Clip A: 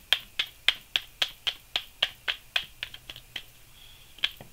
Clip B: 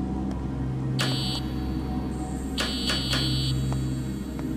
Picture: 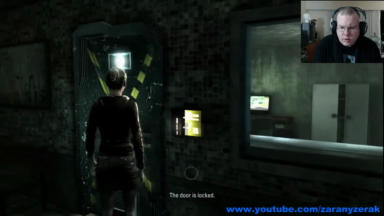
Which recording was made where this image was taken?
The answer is B